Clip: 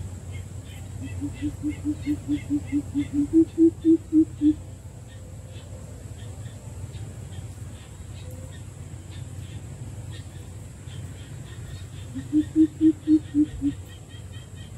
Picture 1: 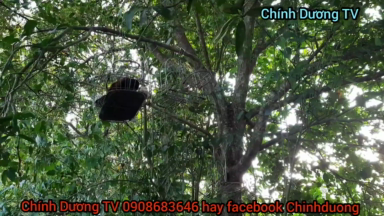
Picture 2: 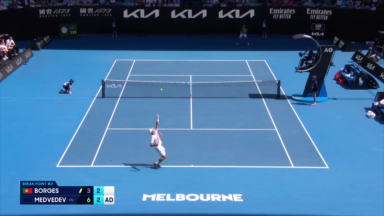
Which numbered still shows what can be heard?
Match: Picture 1